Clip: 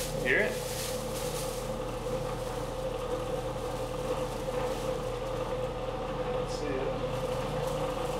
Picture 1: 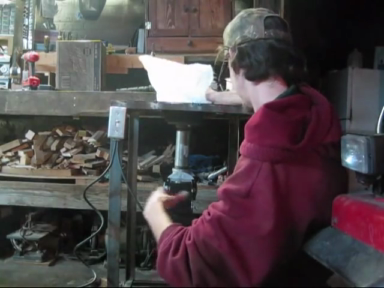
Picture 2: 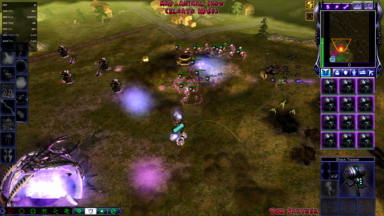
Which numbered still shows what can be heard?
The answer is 1